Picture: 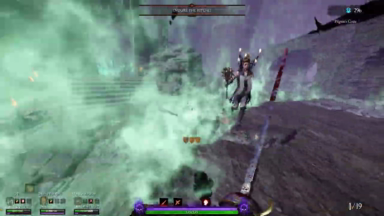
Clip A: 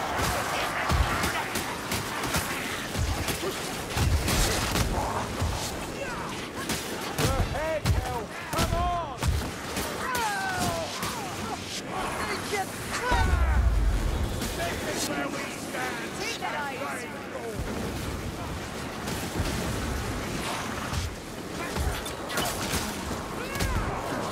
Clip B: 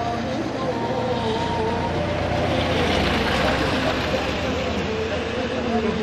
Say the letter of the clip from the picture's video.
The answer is A